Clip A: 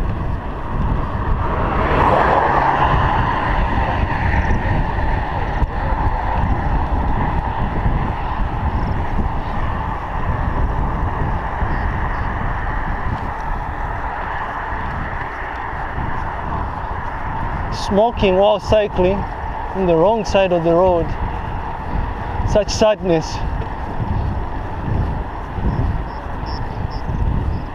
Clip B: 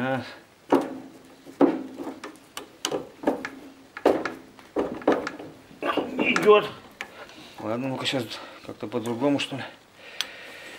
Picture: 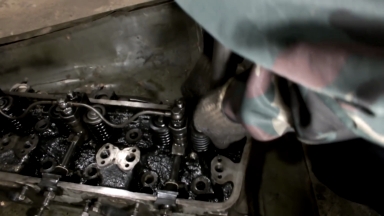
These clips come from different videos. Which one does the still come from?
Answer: B